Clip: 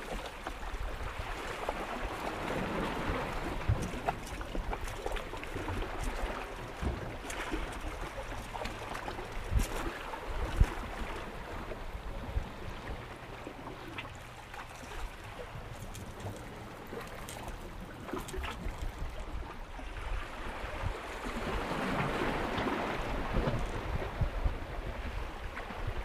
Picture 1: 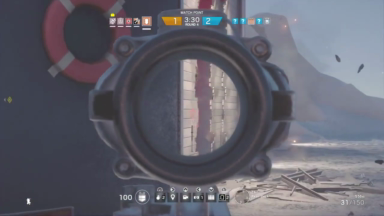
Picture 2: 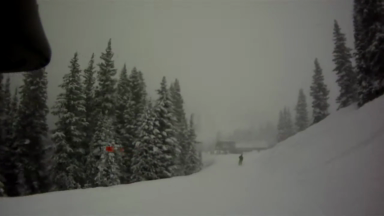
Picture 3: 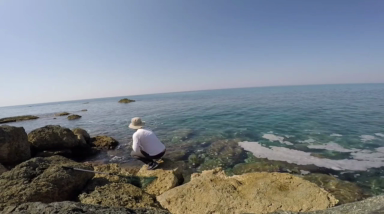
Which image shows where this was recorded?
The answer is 3